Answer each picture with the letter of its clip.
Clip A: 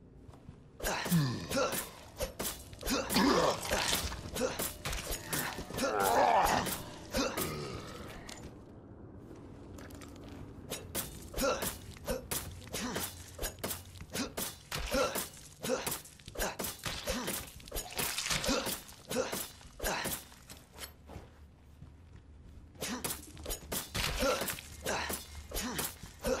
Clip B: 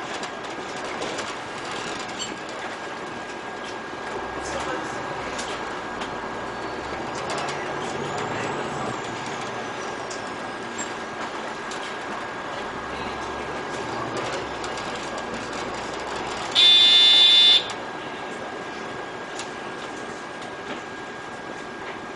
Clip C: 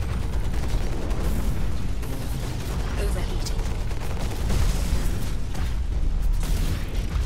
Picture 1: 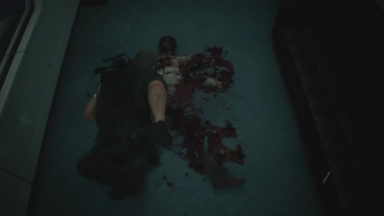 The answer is A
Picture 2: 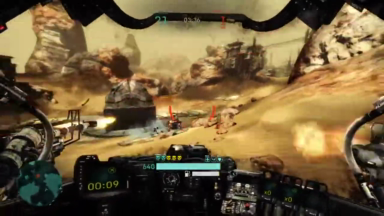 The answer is C